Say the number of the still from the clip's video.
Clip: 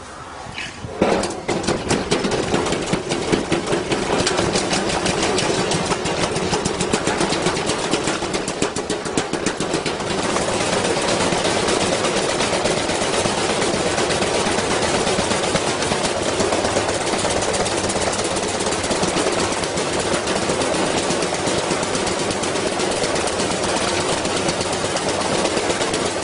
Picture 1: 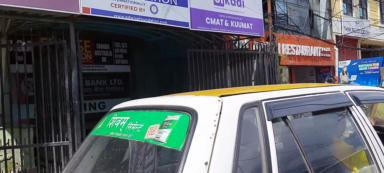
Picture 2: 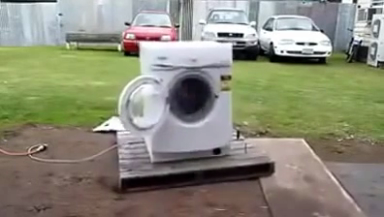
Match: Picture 2